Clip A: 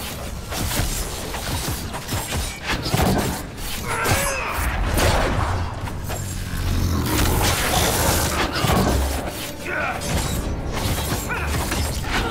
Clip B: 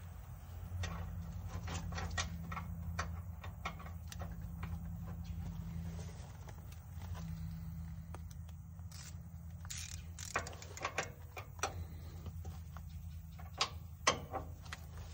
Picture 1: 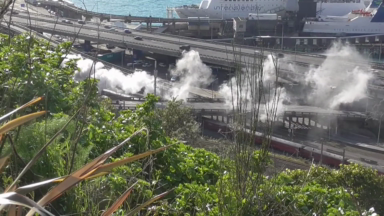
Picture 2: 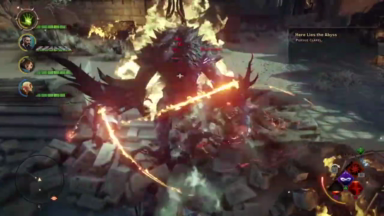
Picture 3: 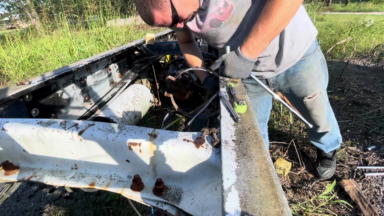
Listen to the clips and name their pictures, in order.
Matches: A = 2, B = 3